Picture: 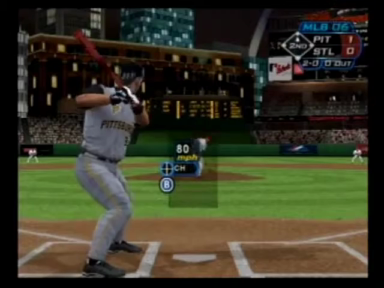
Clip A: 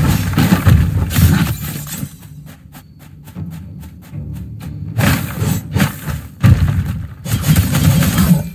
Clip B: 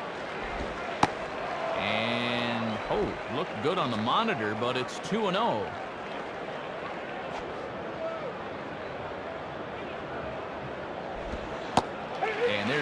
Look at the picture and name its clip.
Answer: B